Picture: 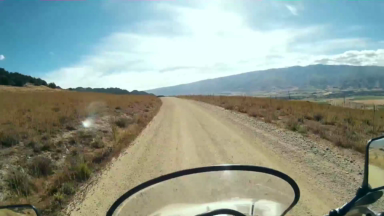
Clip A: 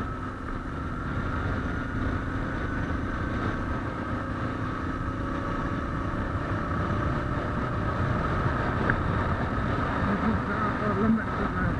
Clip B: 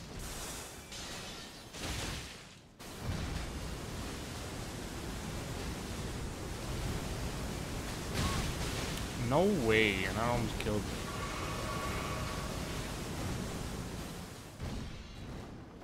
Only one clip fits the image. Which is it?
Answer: A